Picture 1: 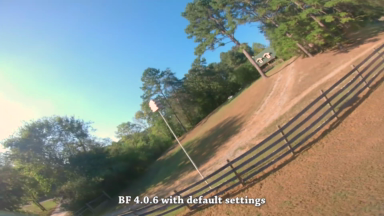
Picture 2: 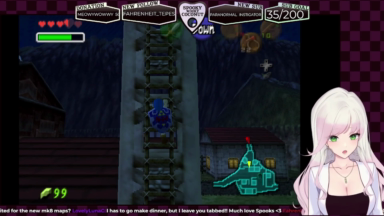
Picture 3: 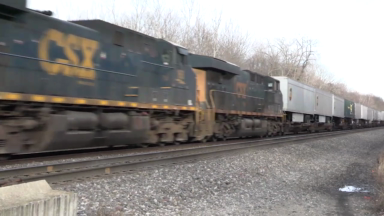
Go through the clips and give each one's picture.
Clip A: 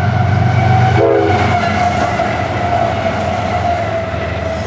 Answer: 3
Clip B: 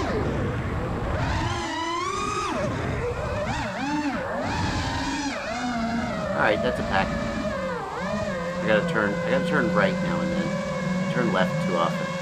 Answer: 1